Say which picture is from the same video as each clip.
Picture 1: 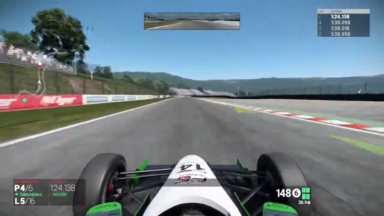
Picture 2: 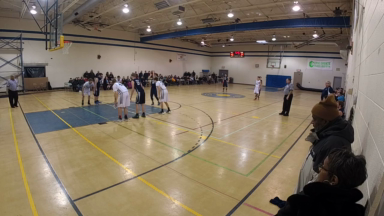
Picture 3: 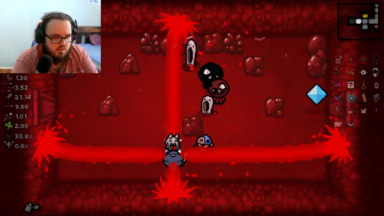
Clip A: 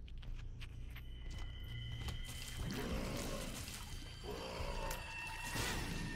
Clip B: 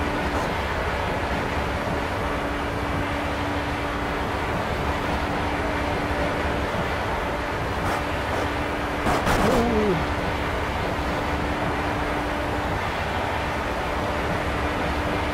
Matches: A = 3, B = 1